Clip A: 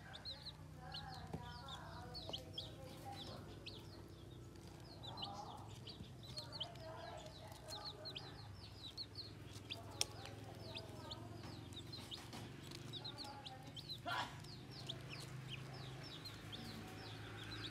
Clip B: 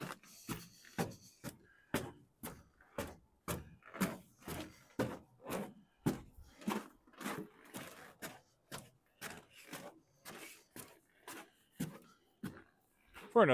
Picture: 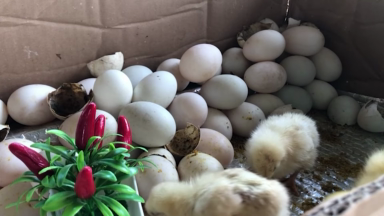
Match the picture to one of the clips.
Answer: A